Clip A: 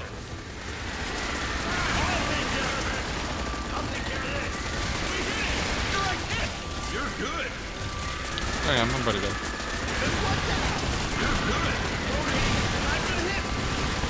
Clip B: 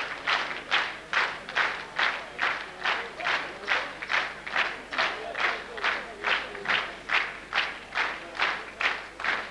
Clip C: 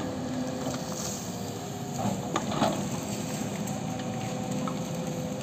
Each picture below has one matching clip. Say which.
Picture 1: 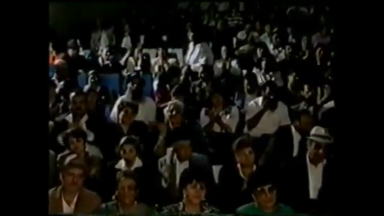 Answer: B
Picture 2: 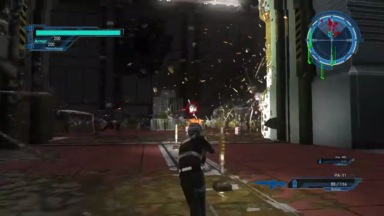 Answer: A